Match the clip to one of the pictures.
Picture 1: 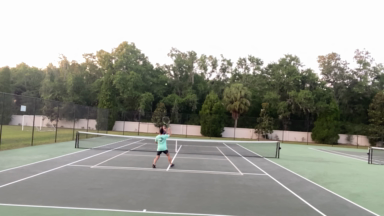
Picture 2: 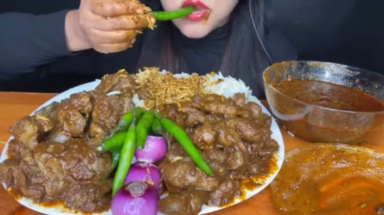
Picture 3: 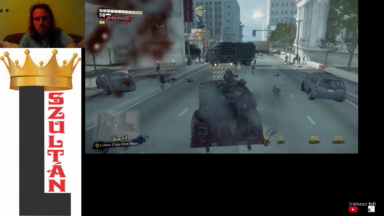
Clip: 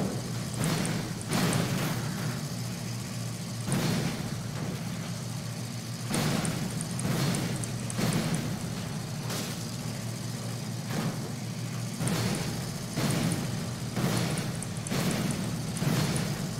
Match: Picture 3